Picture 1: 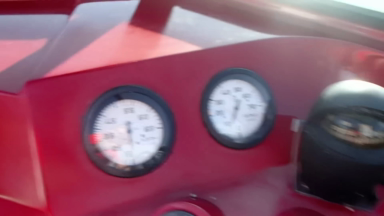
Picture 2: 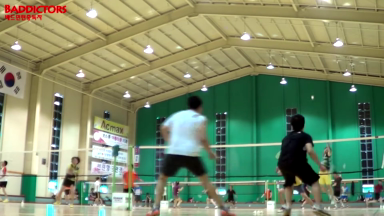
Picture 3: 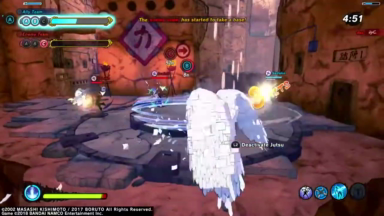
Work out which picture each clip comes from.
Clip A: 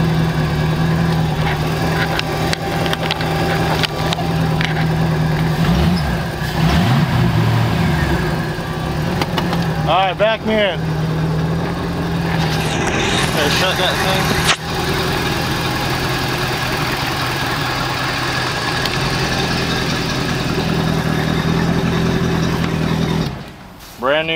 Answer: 1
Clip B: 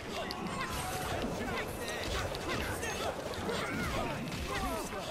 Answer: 3